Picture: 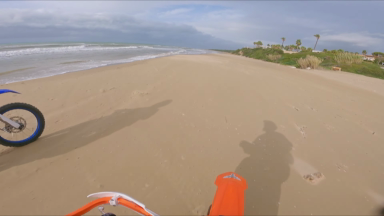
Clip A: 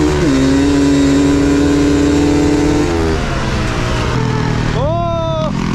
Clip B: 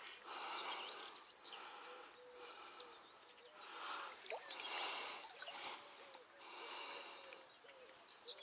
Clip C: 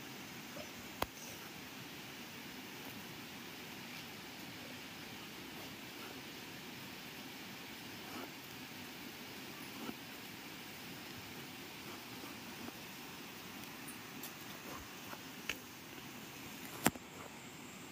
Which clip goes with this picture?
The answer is A